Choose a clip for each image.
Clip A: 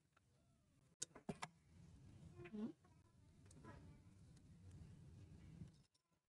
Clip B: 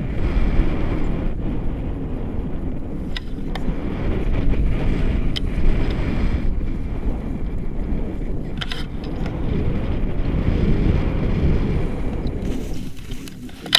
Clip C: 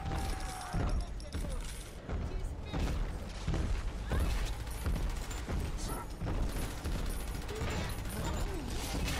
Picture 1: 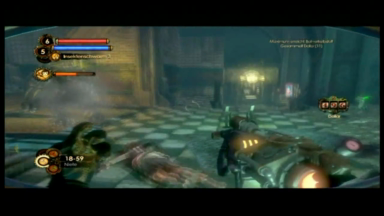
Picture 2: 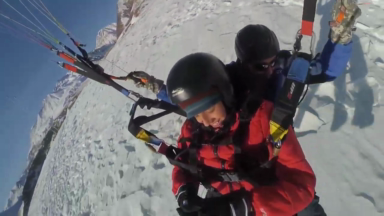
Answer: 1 C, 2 B